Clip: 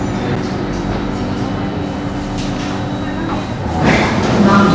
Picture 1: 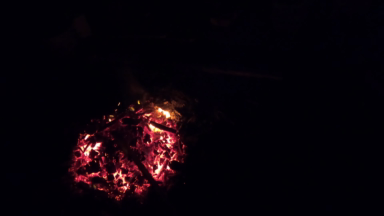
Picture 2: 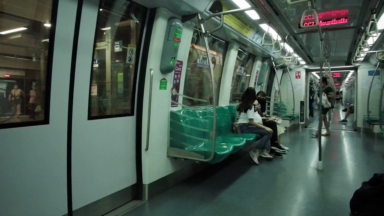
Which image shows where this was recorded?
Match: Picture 2